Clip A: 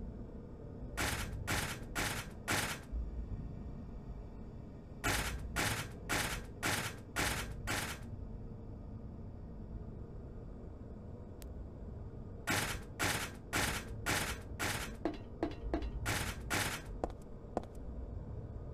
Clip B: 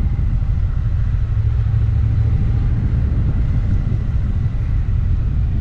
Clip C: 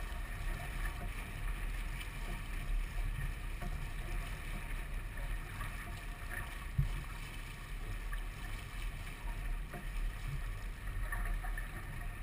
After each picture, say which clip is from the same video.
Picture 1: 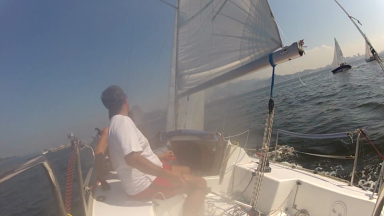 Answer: C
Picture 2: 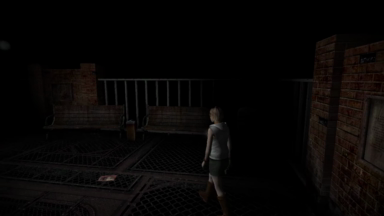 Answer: A